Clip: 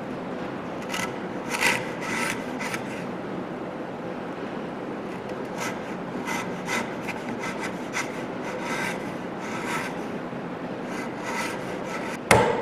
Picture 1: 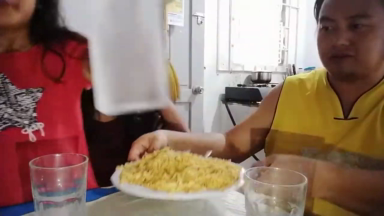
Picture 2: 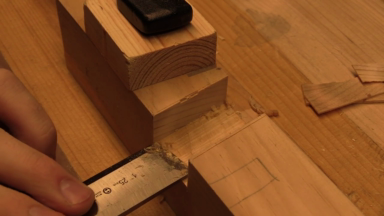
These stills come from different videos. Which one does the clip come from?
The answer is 2